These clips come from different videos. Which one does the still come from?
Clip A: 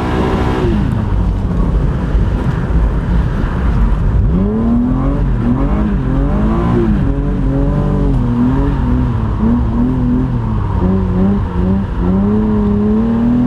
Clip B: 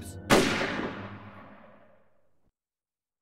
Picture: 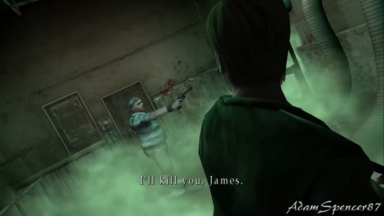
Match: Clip B